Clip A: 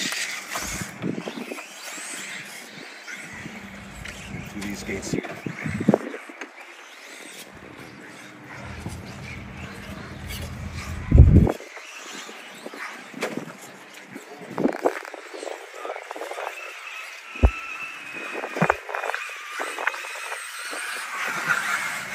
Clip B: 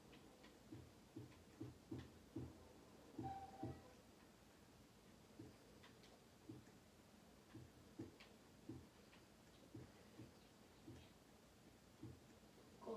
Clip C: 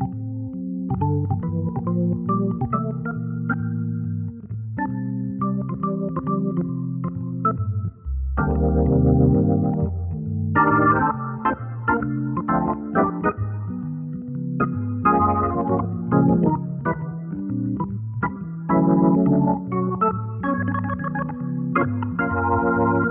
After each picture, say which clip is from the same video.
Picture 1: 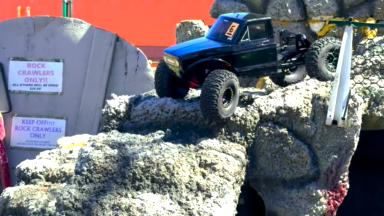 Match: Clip A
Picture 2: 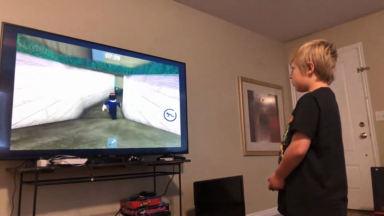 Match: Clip B